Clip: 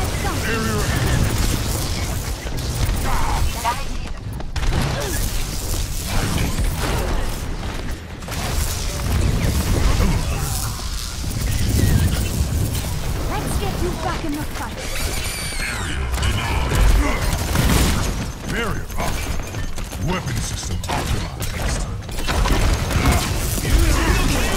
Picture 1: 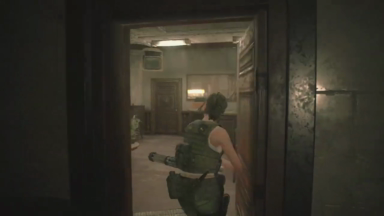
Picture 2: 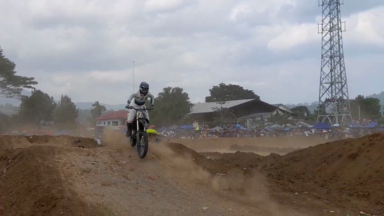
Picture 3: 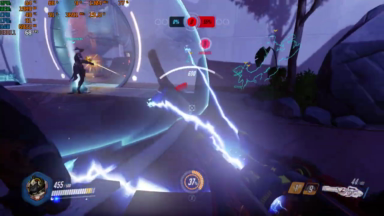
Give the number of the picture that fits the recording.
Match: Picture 3